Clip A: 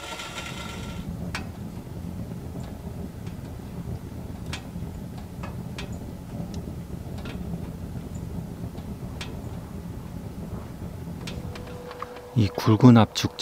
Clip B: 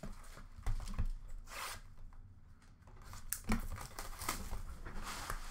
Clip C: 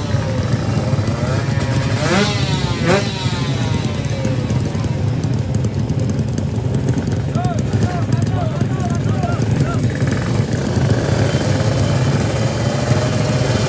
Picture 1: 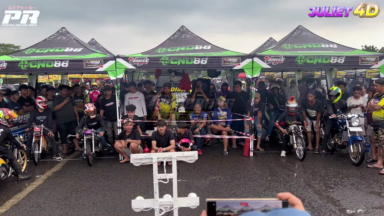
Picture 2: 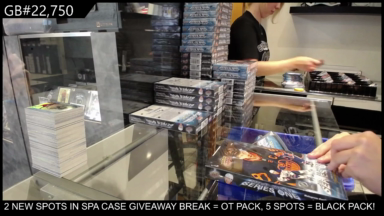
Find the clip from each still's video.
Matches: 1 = C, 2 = B